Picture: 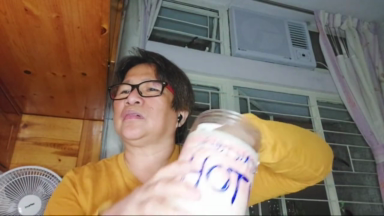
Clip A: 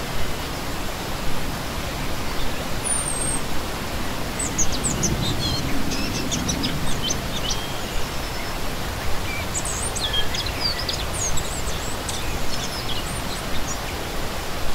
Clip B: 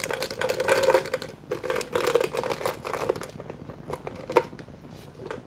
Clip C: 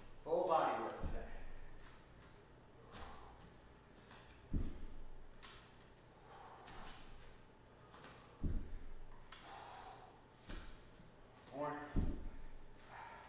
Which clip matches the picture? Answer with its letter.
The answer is B